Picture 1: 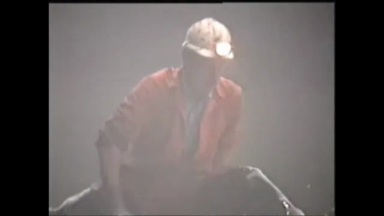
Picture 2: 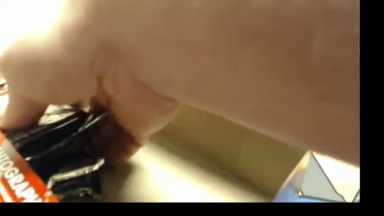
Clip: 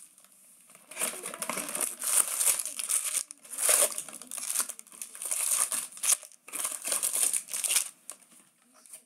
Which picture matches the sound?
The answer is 2